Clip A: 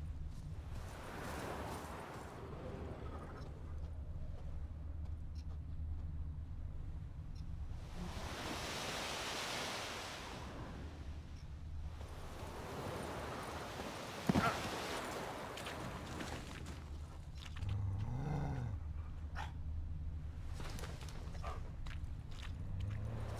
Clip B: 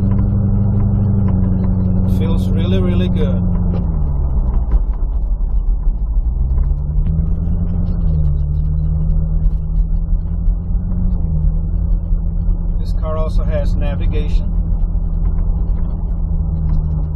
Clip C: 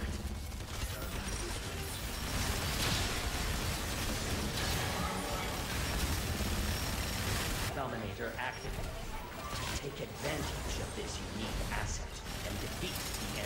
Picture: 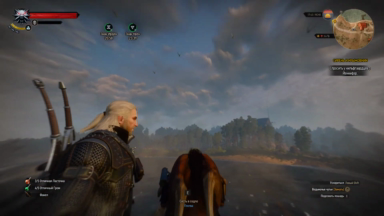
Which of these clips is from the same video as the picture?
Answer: A